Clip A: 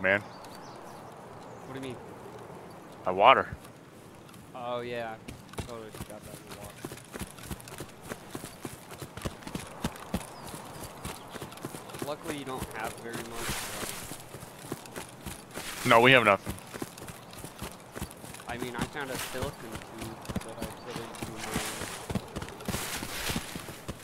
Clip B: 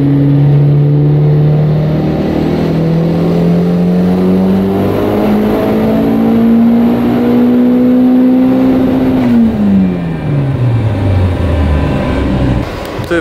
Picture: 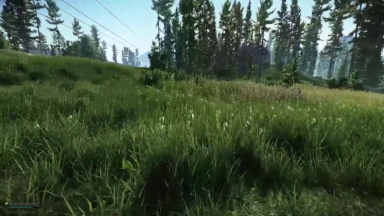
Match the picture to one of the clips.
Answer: A